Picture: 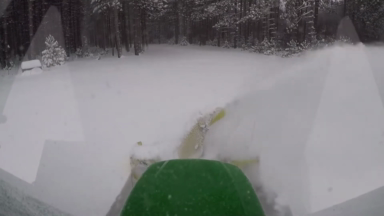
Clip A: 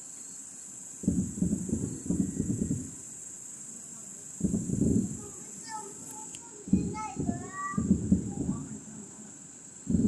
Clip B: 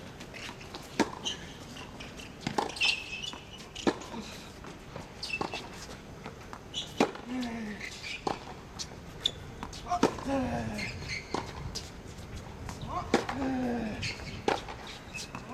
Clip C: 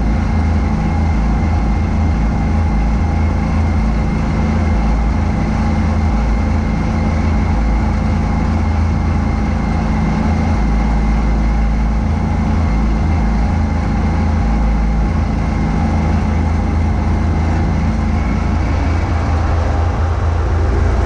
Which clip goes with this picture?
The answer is C